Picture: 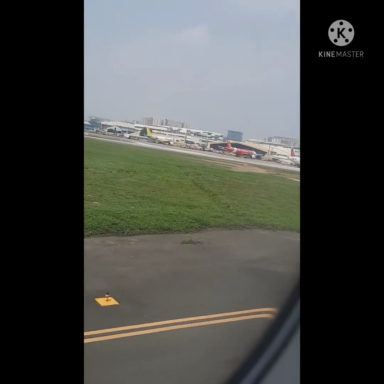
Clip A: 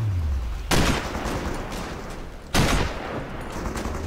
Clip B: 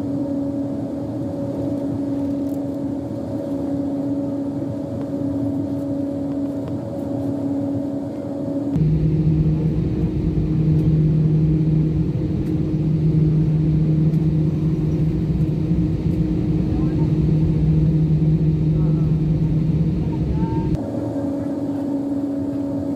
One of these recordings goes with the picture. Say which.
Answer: B